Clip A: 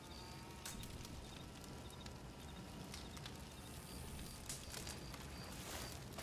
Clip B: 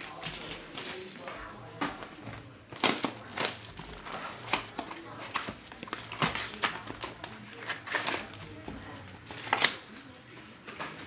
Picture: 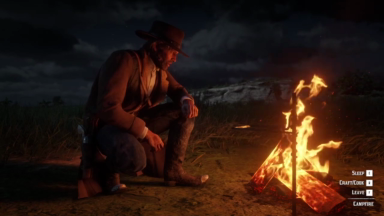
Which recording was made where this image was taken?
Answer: A